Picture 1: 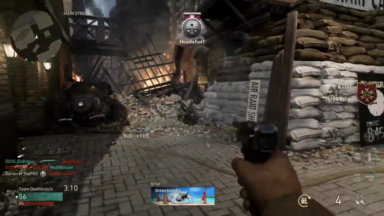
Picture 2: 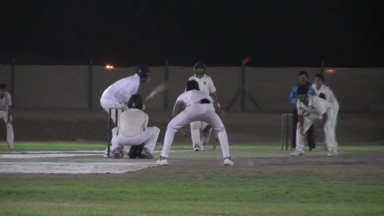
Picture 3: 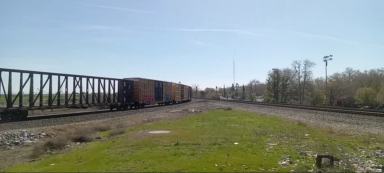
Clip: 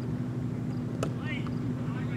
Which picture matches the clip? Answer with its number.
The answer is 2